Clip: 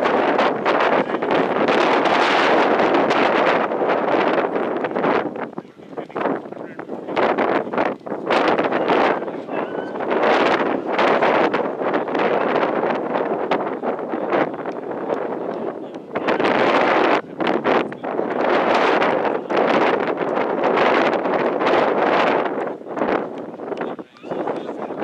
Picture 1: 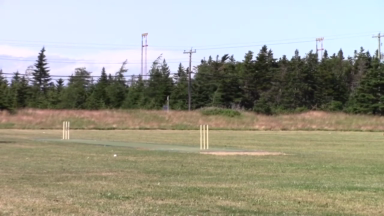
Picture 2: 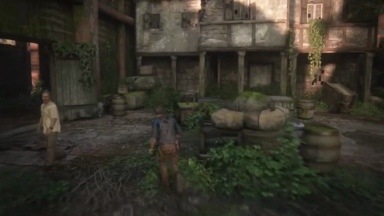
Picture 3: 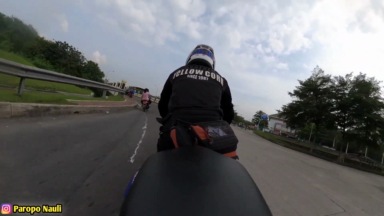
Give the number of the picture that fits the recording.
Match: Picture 1